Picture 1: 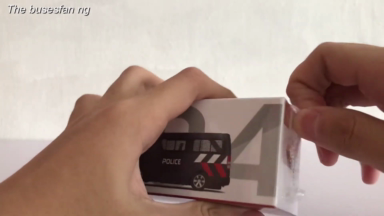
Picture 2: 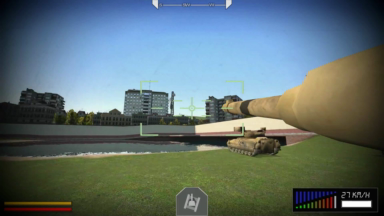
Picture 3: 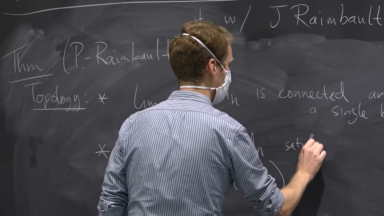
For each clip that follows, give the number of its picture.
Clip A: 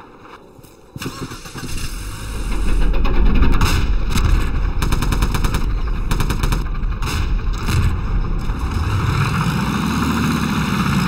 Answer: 2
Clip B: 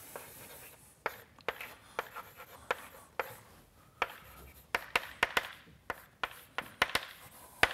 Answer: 3